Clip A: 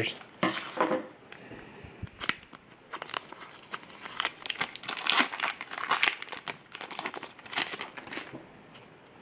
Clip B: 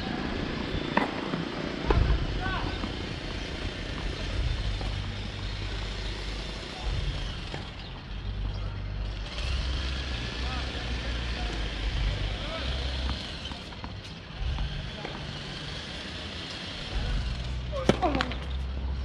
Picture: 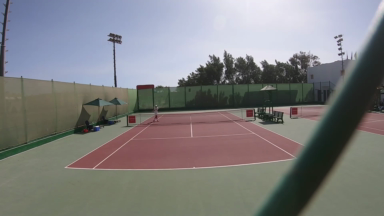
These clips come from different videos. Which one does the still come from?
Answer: B